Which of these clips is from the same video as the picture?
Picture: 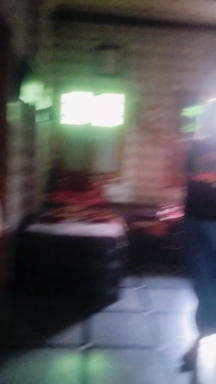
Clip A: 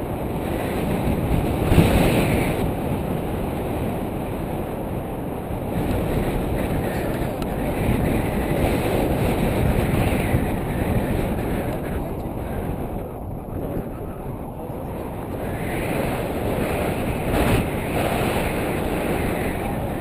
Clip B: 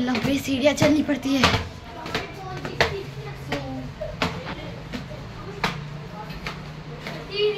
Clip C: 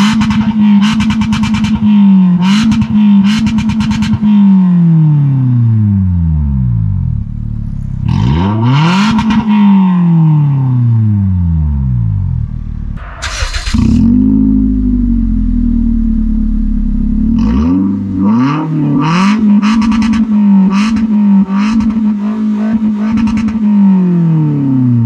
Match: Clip B